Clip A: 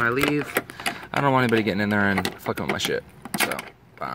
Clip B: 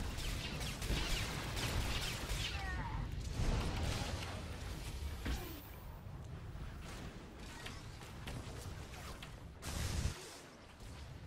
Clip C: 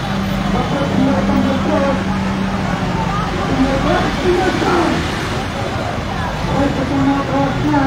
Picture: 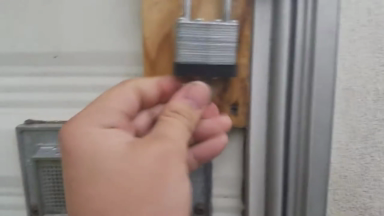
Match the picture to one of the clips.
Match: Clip A